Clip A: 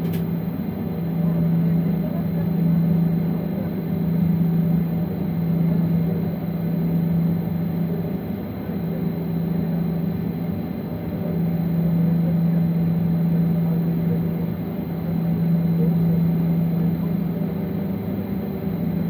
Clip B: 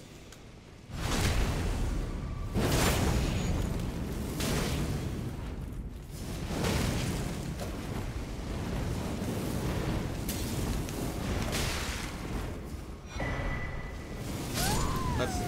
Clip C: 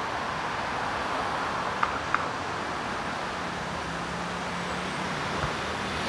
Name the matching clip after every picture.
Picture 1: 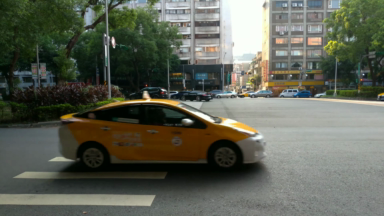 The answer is C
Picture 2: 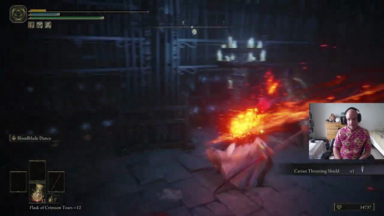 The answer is B